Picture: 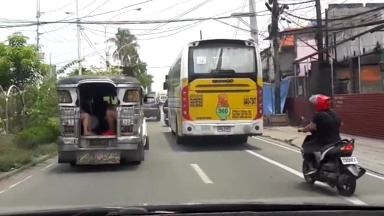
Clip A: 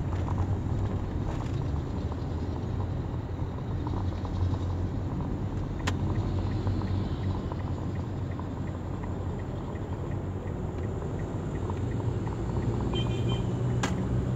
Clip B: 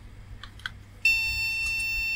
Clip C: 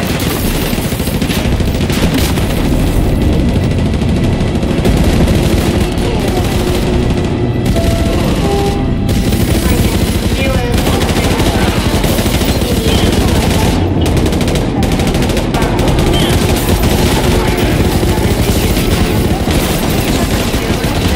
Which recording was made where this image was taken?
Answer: A